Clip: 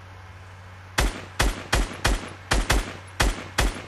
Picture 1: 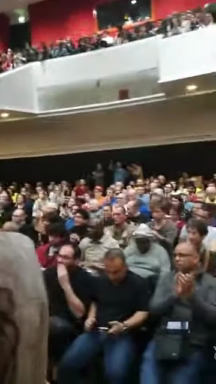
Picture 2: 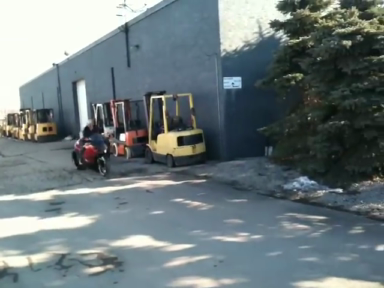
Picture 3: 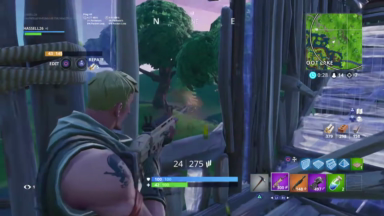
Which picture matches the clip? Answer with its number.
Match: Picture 3